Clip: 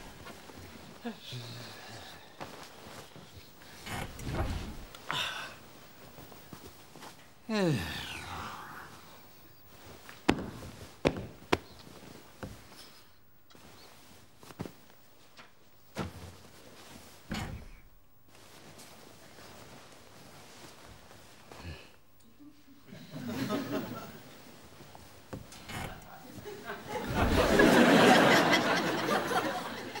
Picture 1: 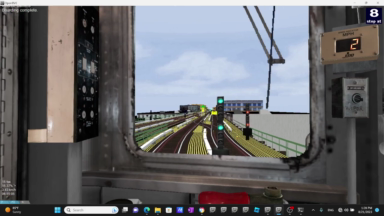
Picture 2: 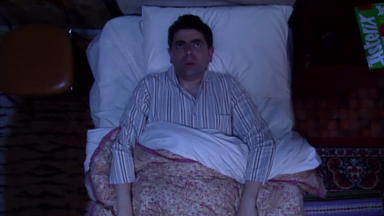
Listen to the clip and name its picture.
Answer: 2